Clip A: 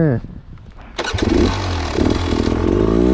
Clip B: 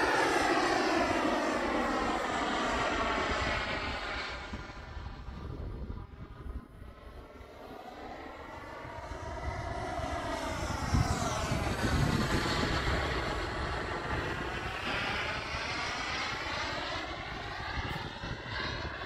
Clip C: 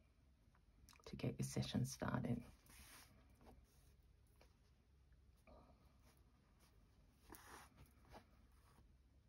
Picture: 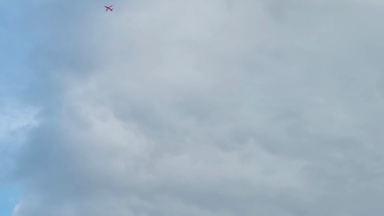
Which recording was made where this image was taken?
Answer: B